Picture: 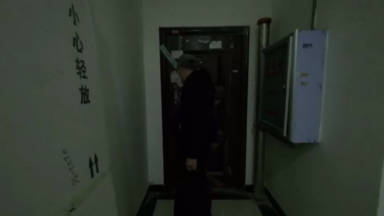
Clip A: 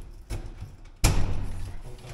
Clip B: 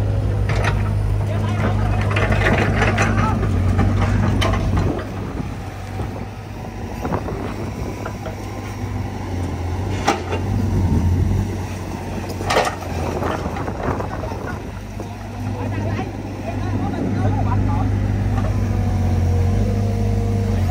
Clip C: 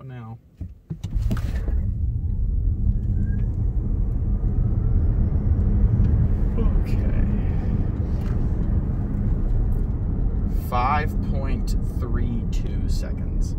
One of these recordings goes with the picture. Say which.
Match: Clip A